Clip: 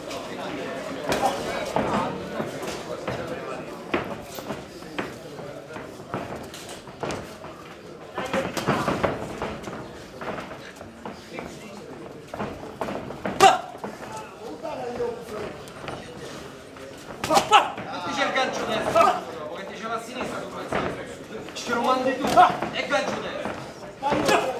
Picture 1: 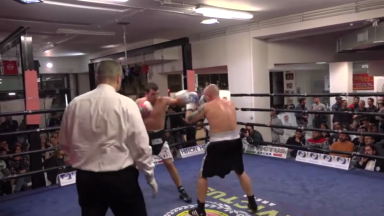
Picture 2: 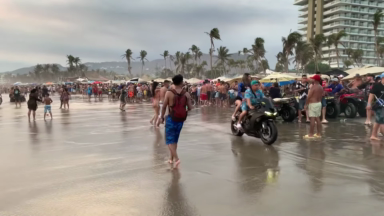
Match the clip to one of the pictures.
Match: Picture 1